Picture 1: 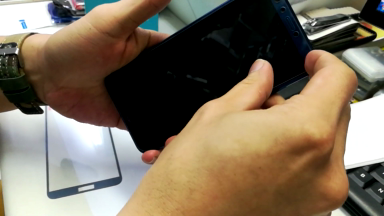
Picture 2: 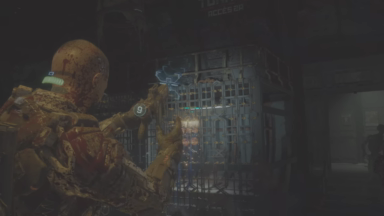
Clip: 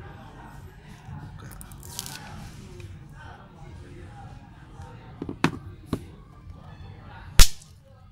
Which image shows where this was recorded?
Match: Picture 1